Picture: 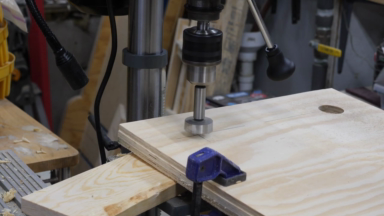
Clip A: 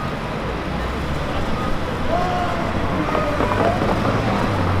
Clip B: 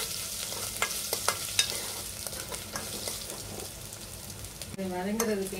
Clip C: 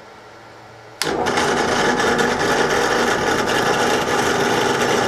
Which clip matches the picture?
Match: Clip C